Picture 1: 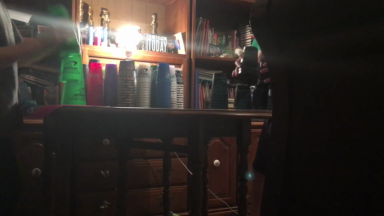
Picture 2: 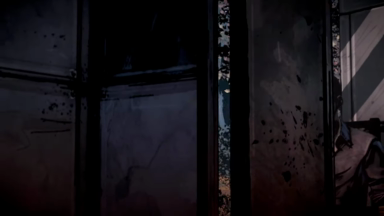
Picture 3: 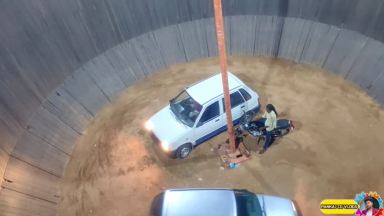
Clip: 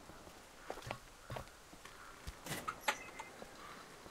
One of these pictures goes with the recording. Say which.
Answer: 2